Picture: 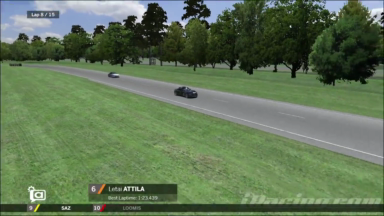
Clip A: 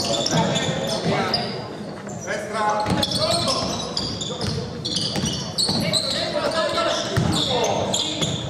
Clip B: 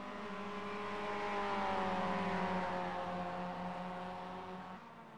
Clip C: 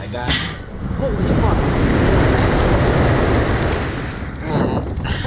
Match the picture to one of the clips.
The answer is B